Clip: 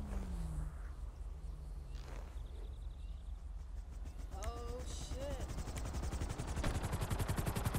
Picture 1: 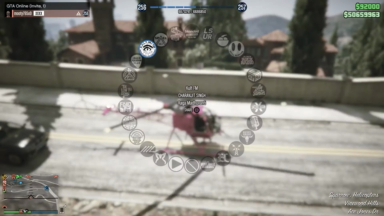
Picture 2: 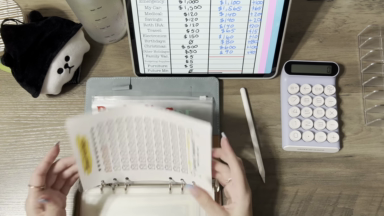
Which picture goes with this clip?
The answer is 1